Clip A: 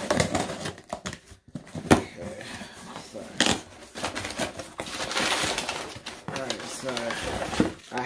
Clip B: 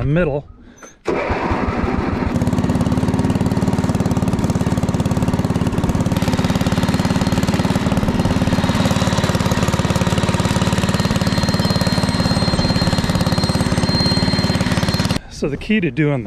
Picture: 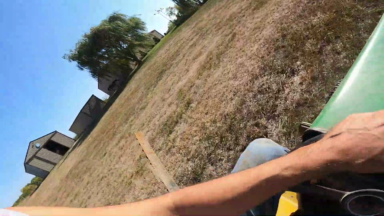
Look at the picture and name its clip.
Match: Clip B